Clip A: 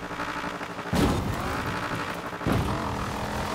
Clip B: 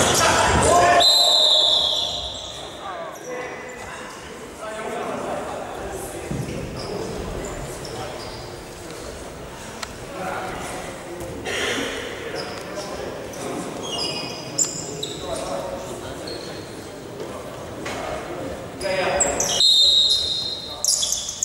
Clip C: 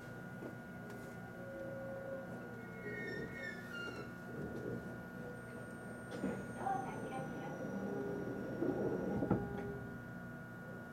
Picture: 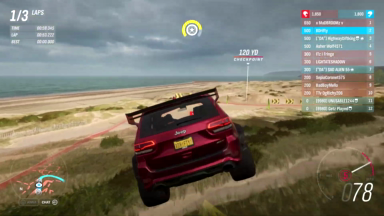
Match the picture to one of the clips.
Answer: A